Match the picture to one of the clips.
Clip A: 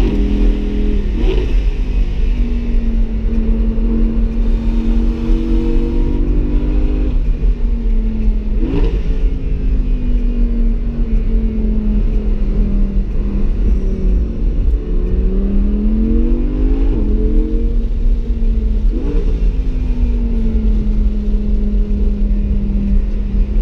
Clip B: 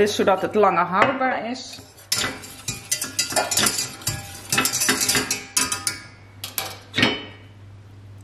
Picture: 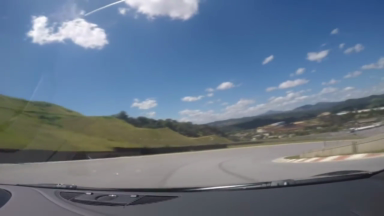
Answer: A